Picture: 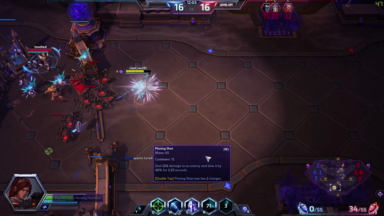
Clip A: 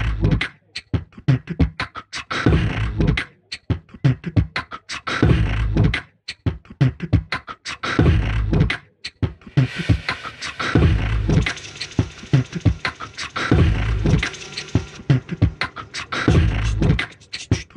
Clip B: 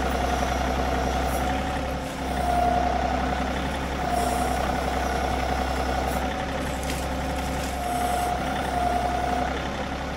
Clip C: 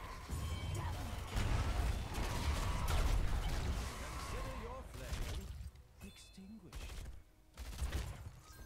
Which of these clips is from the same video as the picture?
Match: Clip C